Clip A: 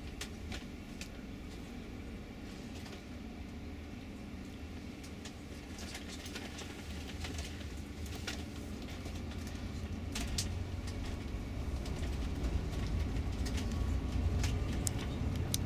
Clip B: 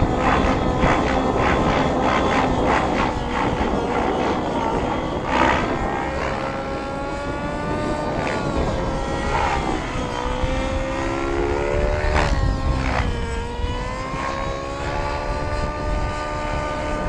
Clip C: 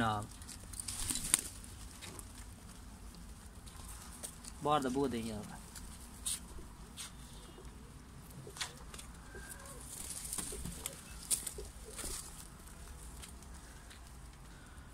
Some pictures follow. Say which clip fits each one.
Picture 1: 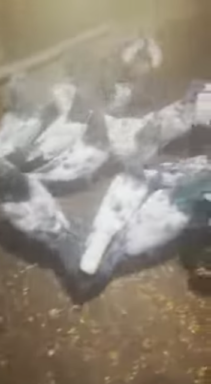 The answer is C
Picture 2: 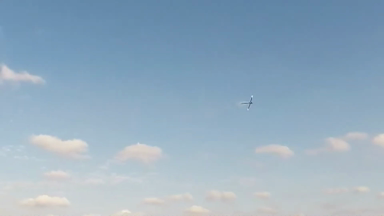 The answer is B